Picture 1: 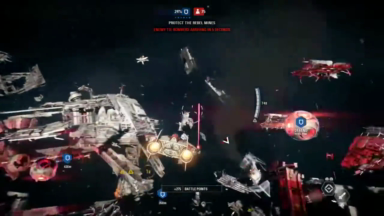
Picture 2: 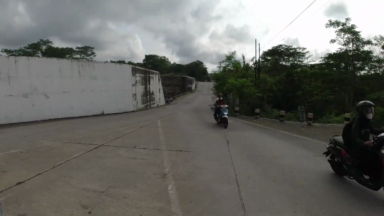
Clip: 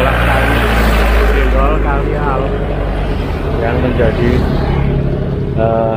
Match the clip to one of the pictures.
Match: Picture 2